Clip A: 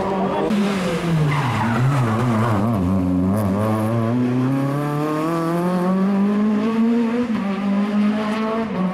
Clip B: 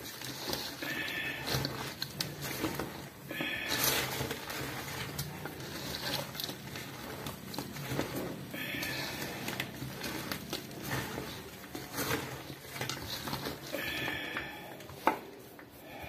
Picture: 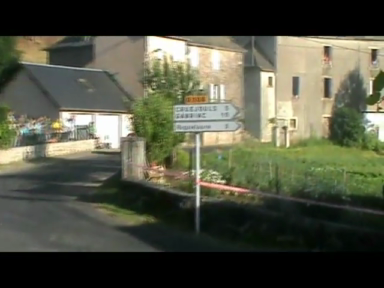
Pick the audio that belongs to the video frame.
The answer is A